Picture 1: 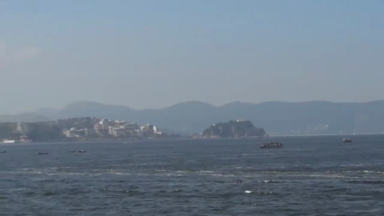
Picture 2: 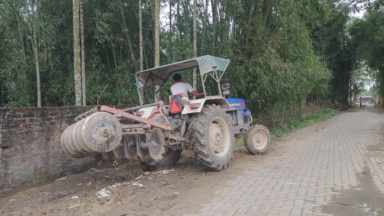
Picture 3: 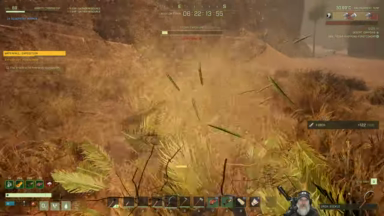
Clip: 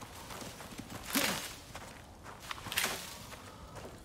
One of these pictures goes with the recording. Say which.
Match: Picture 3